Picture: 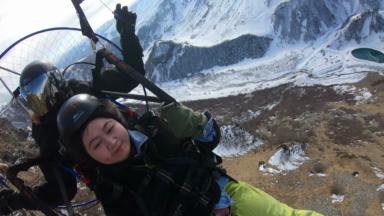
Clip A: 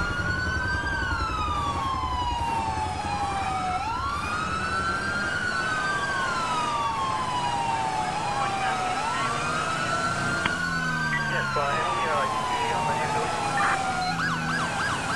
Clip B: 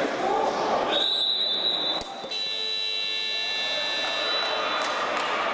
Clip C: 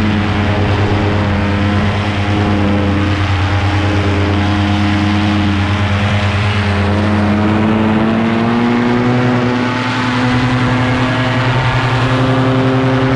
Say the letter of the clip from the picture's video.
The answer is C